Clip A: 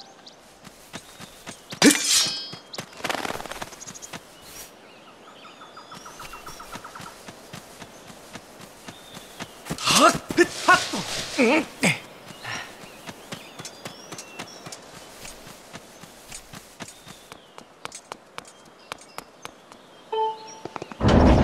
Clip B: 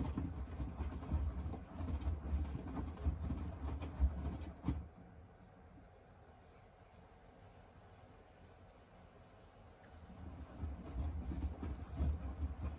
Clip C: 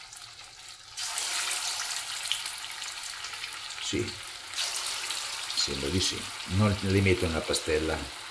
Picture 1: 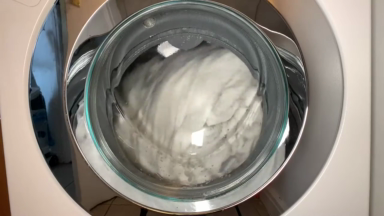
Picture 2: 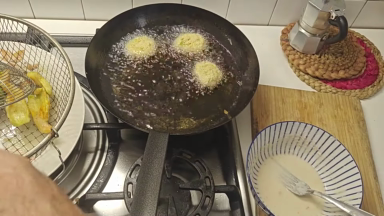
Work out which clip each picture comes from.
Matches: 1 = B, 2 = C